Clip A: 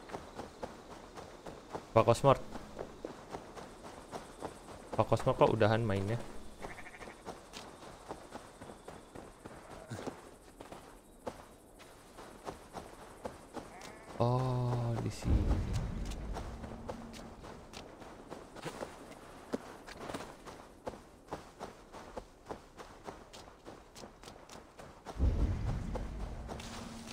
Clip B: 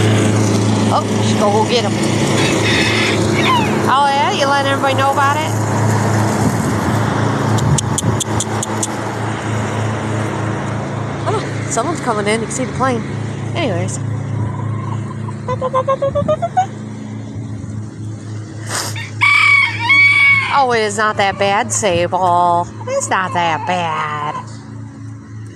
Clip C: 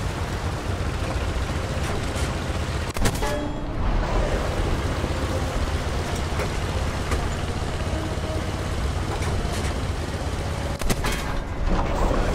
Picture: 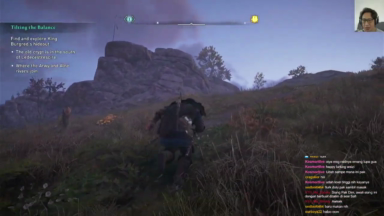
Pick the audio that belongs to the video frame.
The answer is A